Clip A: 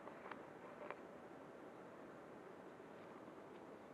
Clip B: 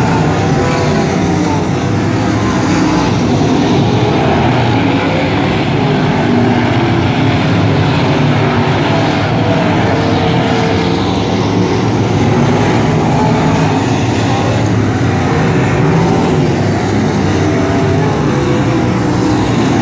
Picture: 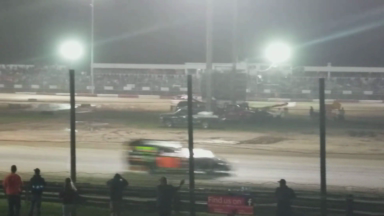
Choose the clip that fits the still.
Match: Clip B